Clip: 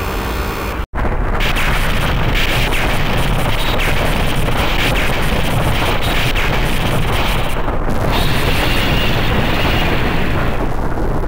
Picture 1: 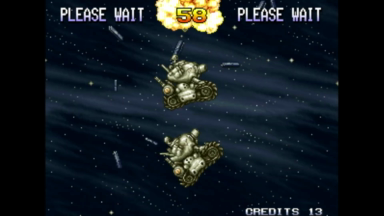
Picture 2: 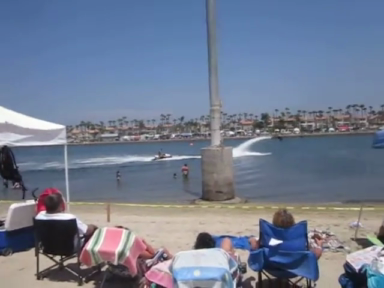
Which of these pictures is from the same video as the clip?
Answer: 1